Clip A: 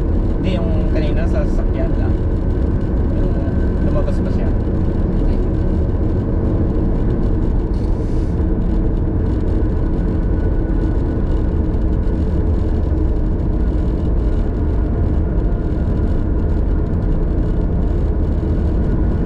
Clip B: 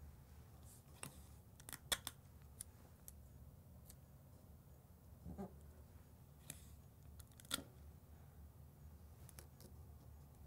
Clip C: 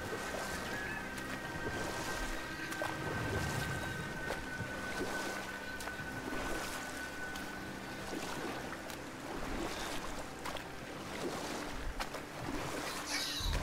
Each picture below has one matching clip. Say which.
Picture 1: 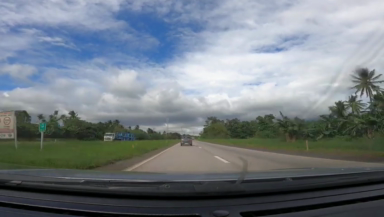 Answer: A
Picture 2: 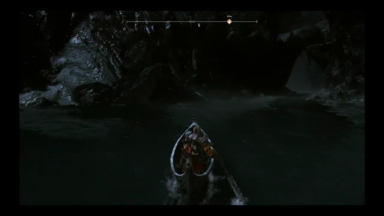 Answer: C